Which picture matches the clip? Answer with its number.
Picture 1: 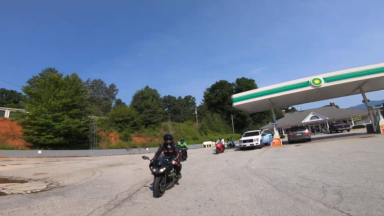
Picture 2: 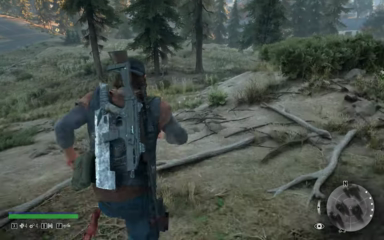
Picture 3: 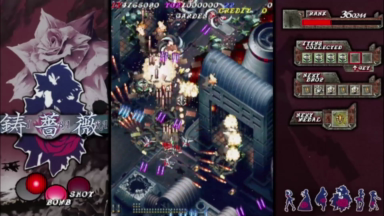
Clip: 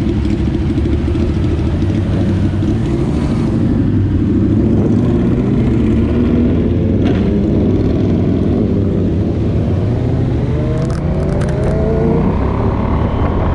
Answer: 1